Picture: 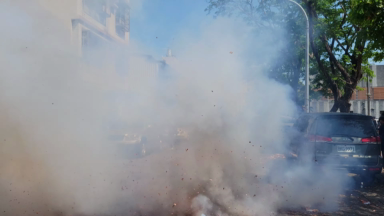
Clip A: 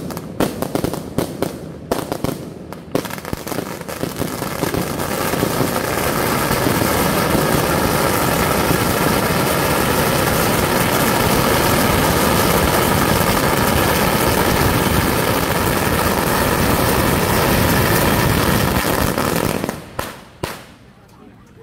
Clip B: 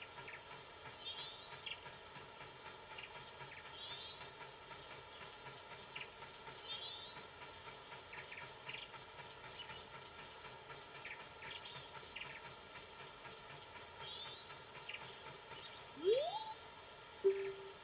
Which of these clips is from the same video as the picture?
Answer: A